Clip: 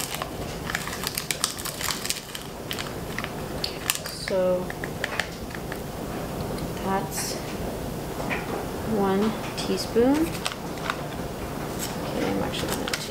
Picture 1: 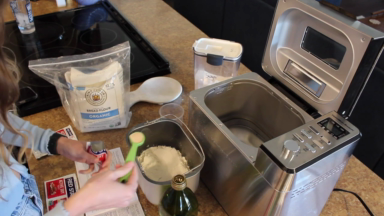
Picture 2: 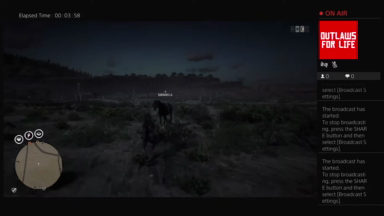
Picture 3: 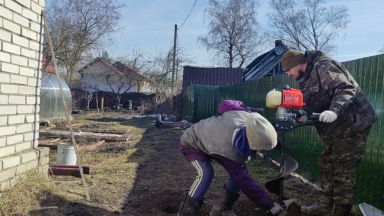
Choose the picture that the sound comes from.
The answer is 1